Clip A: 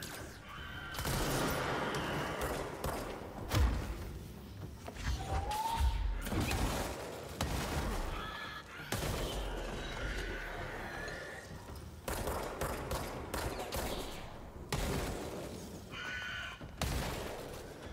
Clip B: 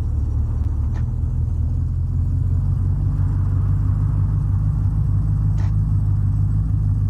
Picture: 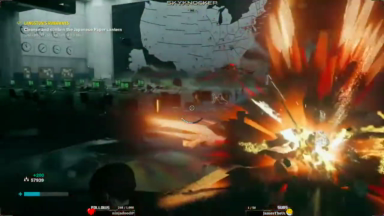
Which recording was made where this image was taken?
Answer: A